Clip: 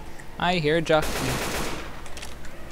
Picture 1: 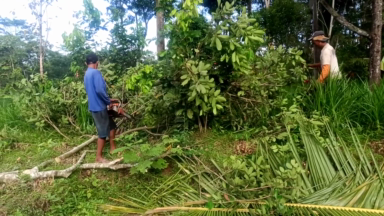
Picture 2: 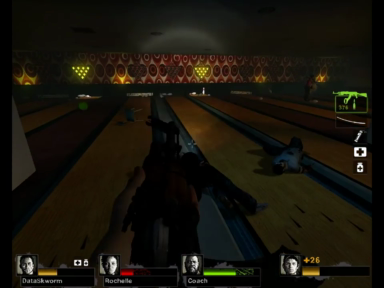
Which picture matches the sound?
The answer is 2